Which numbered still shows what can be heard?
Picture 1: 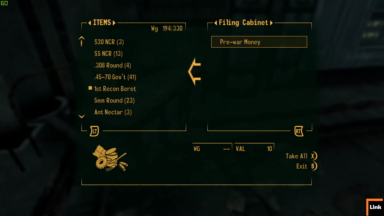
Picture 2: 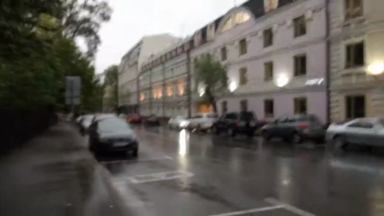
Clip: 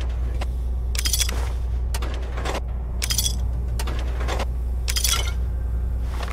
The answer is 1